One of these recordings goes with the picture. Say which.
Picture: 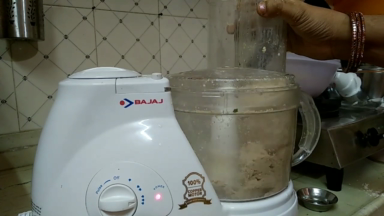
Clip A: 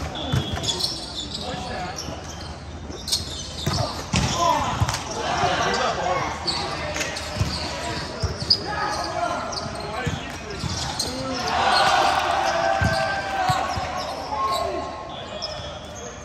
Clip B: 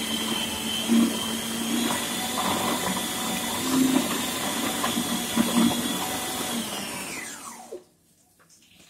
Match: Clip B